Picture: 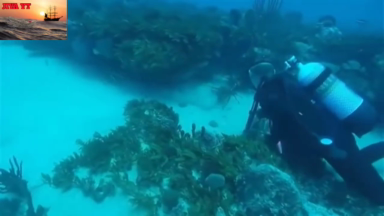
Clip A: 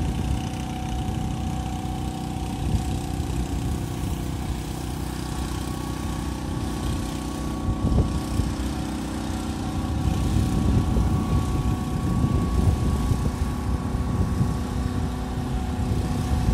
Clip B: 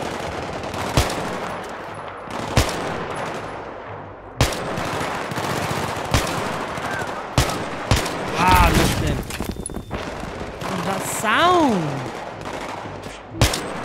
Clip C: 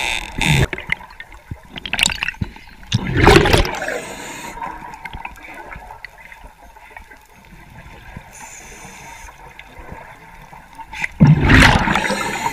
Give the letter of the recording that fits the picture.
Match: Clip C